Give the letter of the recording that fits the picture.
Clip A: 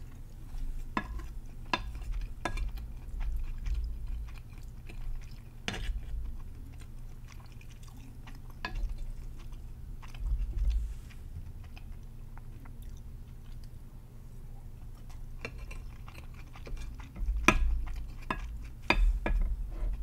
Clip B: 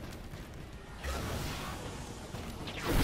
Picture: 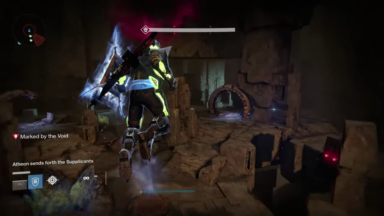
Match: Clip B